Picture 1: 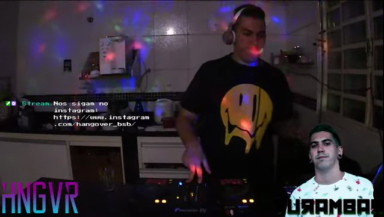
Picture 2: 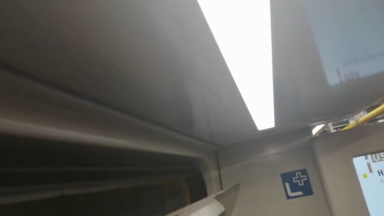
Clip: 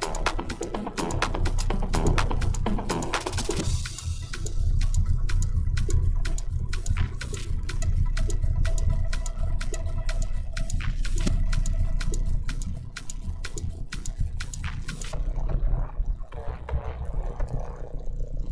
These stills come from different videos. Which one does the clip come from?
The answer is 1